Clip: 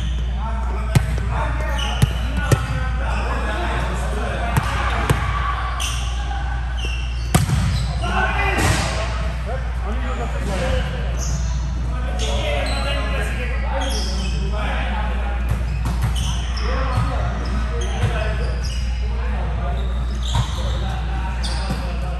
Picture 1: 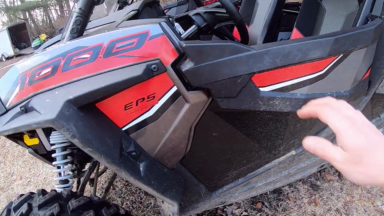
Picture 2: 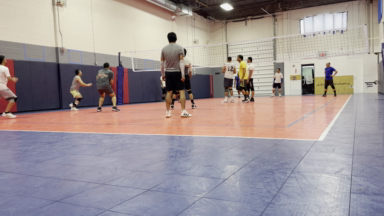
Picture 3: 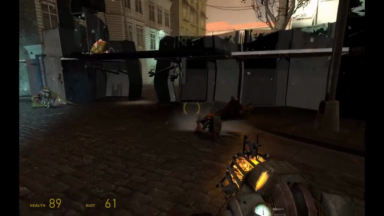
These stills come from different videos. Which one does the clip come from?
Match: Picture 2